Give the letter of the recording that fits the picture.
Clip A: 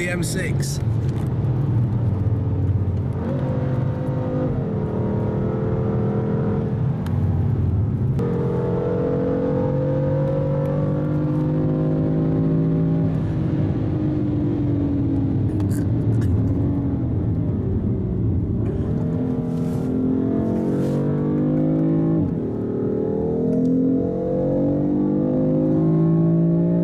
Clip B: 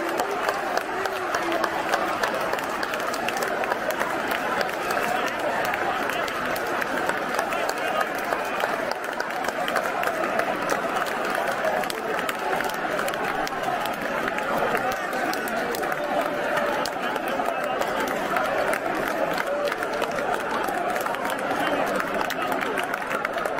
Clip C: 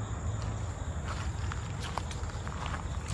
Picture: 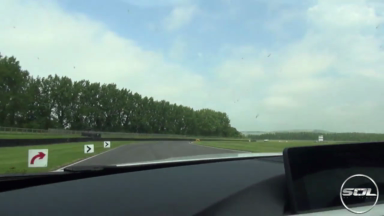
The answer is A